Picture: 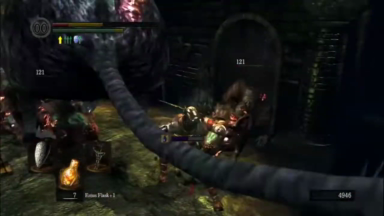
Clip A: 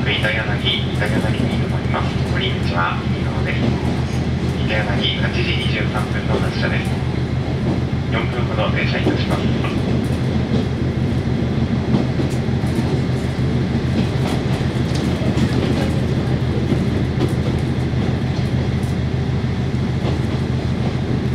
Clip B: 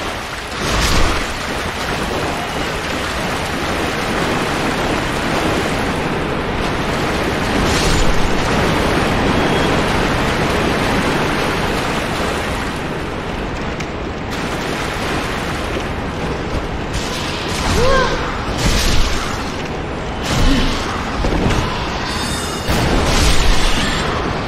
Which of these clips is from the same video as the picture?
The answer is B